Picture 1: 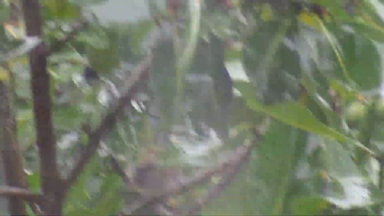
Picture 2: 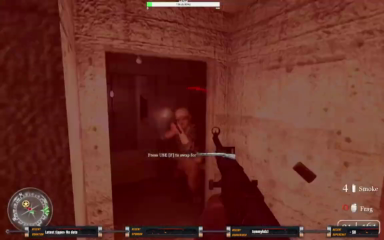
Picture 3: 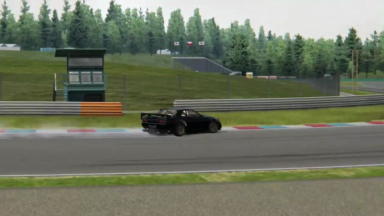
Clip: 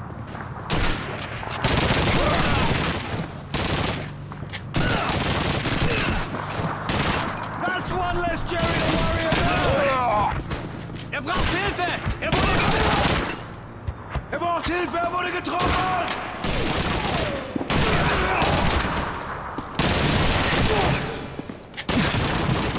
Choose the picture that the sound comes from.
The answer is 2